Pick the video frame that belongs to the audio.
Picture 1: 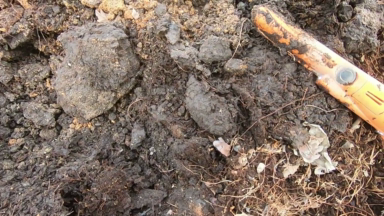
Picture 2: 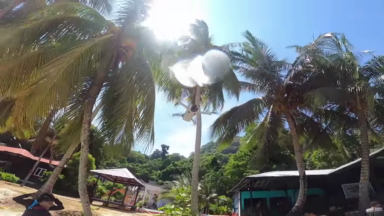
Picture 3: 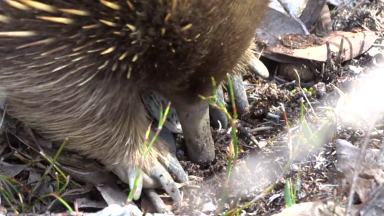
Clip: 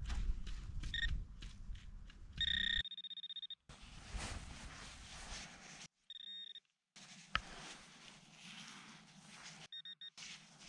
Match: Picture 1